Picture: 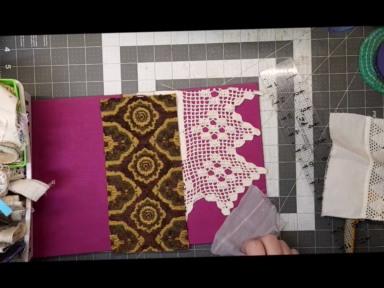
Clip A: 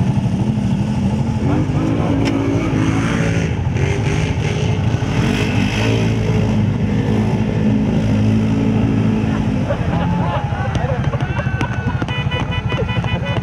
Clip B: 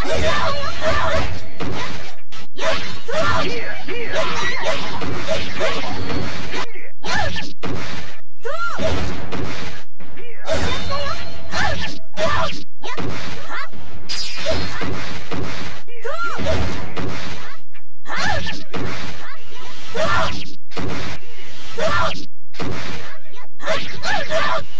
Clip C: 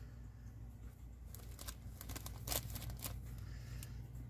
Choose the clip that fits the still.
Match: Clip C